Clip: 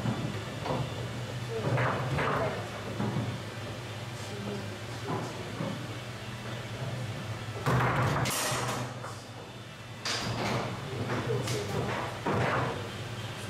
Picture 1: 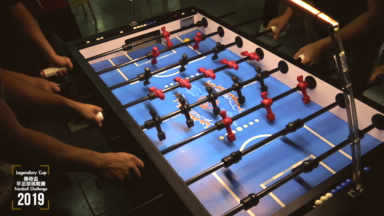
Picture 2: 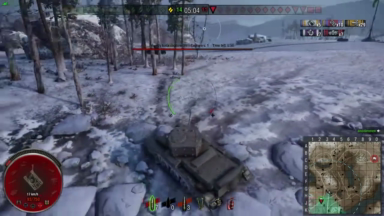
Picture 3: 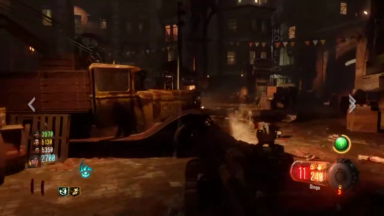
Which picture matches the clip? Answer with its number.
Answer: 1